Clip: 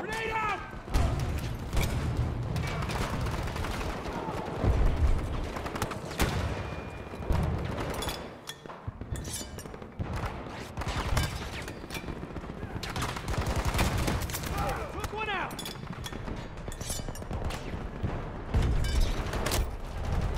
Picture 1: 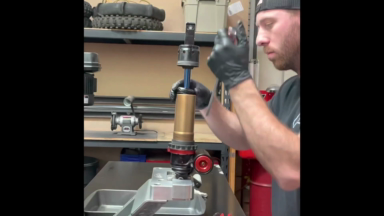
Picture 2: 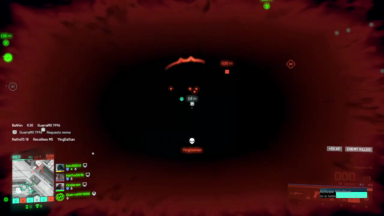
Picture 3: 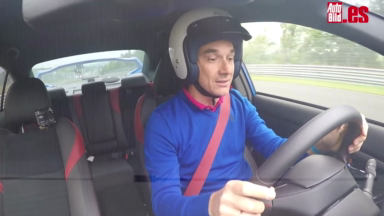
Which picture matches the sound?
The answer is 2